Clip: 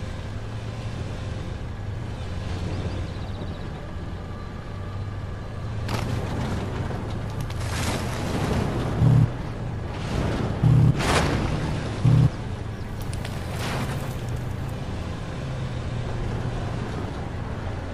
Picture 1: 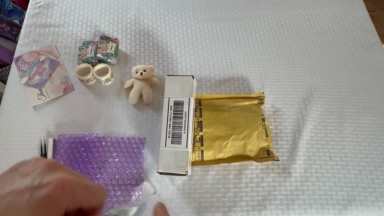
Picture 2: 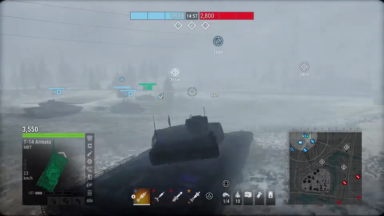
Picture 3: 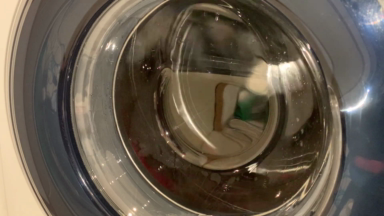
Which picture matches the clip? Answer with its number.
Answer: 2